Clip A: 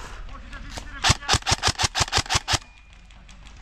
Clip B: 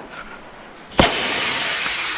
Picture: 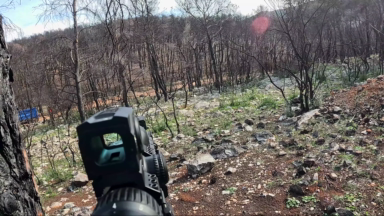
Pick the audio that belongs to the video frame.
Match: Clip A